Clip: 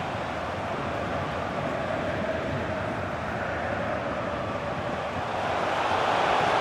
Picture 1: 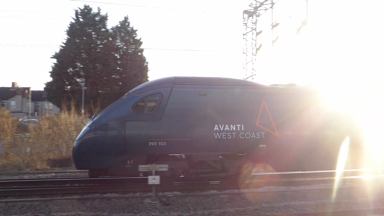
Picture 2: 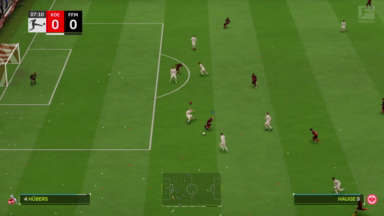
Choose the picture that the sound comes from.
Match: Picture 2